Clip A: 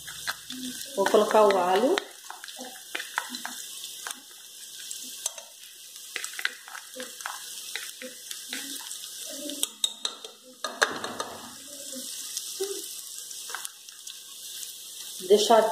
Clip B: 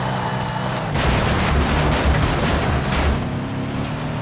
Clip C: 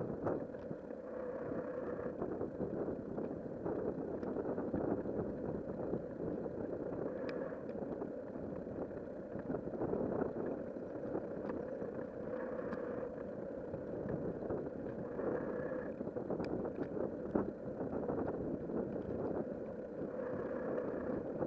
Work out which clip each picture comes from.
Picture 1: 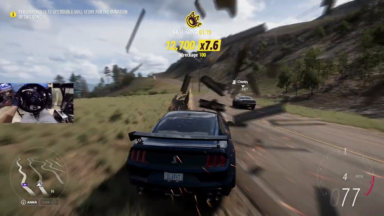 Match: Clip B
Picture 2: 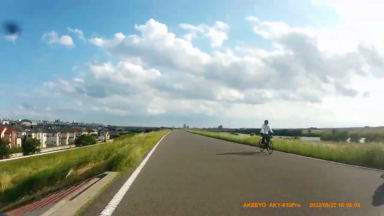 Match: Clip C